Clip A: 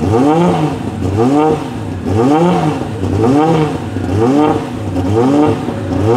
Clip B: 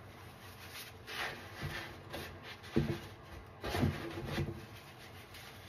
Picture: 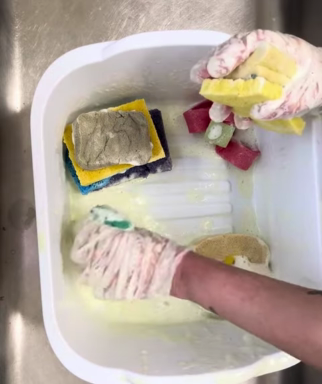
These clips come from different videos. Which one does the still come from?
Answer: B